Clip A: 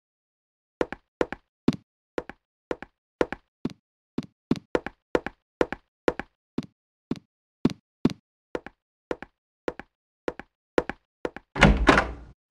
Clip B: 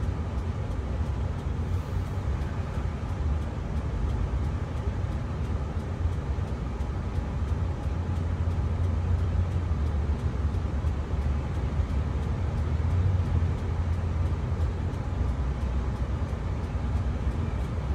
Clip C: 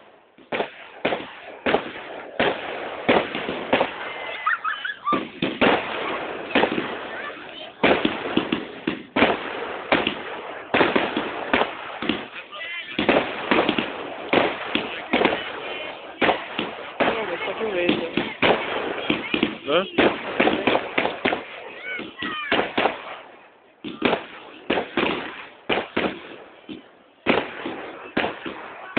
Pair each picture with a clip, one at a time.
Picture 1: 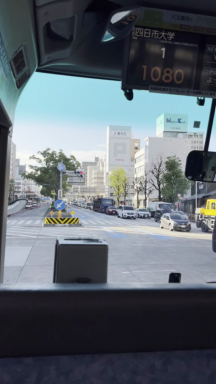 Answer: B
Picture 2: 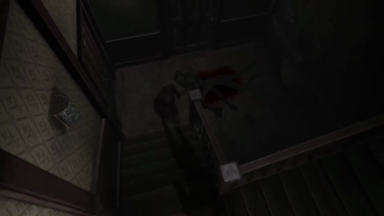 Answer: A